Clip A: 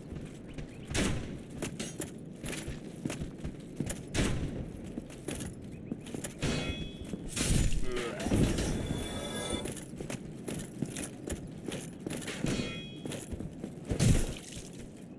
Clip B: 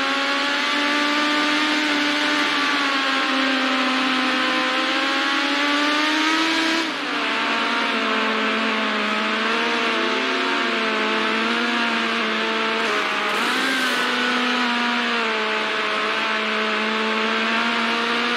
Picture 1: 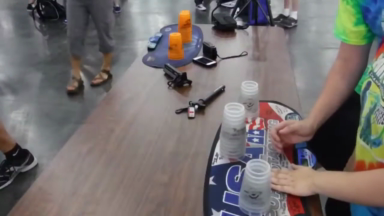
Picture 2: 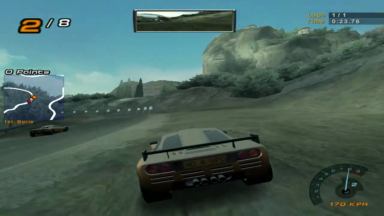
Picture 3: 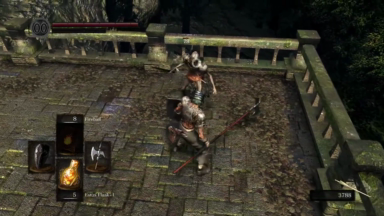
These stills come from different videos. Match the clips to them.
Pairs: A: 3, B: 2